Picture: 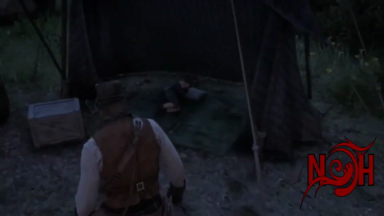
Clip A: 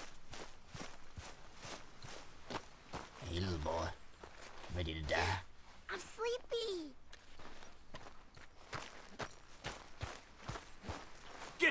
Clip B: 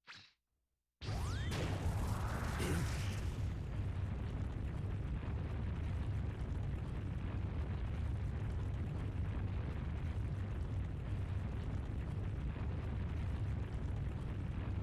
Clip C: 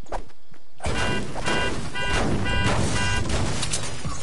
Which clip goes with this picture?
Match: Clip A